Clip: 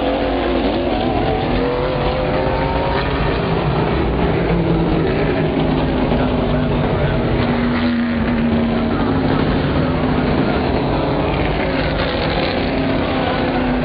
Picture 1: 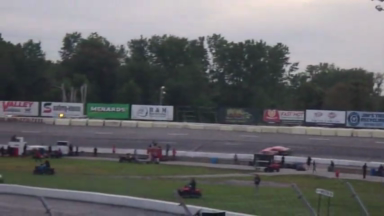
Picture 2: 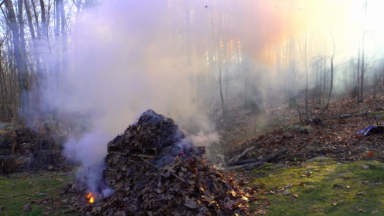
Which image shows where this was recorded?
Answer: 1